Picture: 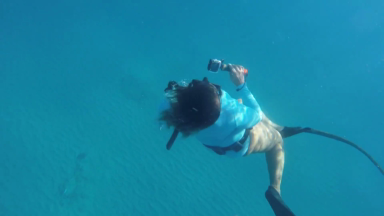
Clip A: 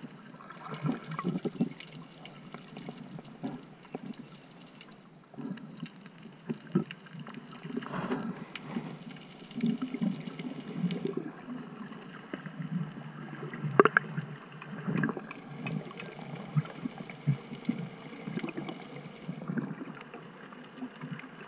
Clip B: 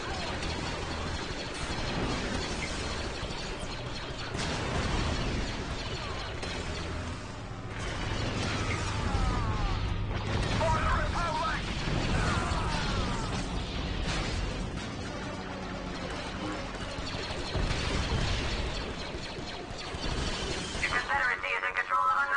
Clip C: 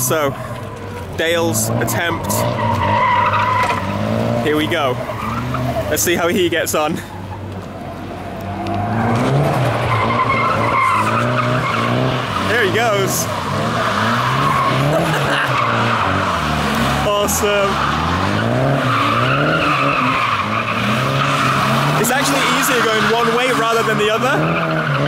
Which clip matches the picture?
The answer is A